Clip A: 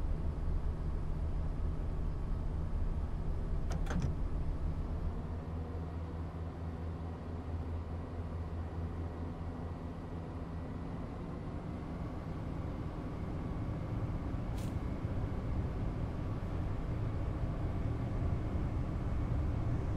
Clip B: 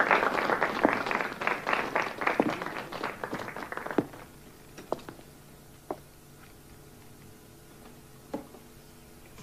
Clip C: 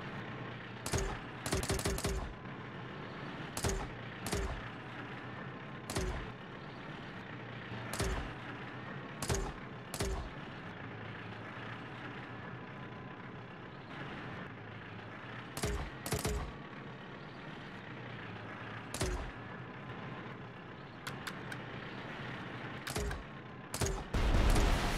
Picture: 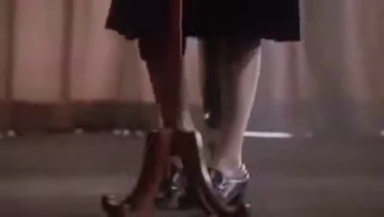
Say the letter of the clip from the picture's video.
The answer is B